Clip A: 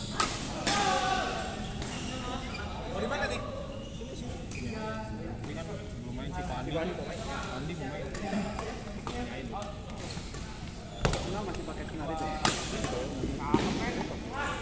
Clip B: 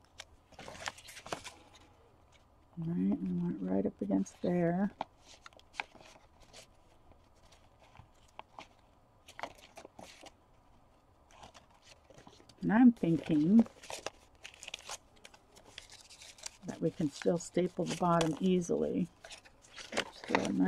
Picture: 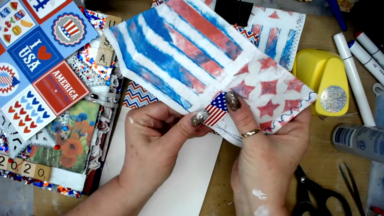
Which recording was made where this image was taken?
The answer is B